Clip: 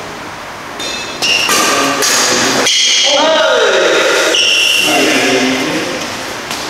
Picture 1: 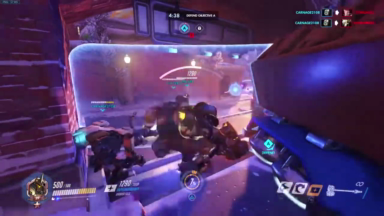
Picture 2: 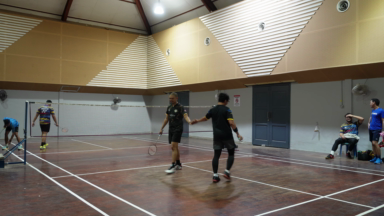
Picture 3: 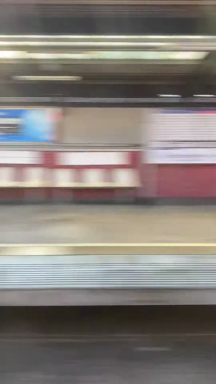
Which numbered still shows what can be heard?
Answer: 2